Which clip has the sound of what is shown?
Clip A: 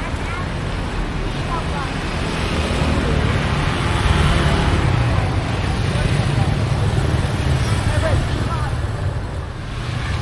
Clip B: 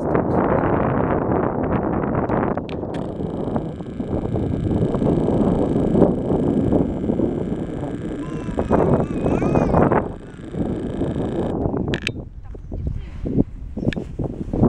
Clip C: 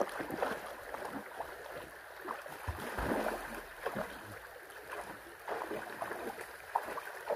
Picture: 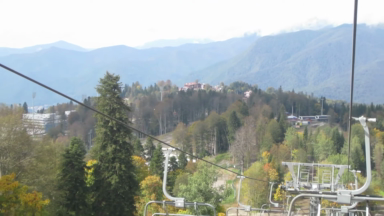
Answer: B